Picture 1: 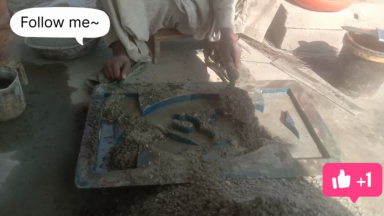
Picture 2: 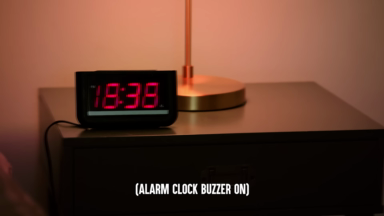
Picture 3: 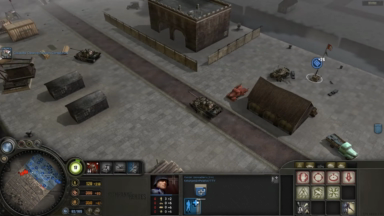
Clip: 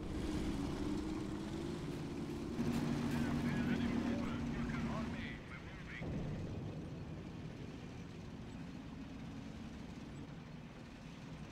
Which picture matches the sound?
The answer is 3